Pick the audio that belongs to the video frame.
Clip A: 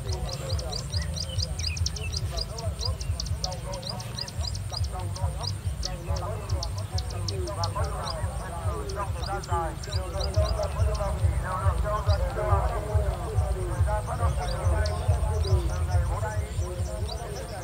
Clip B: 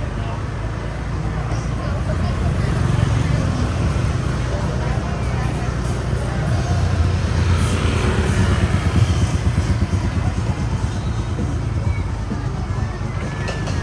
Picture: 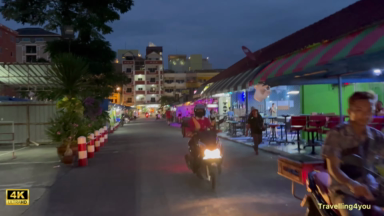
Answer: B